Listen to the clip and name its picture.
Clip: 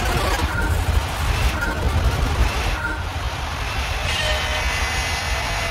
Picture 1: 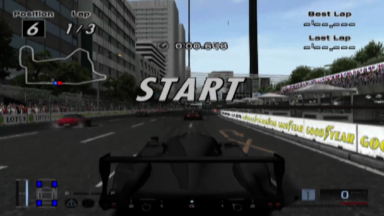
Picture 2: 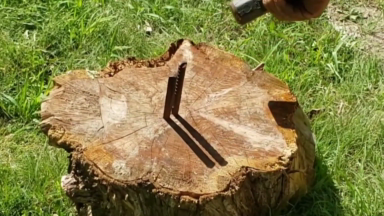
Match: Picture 1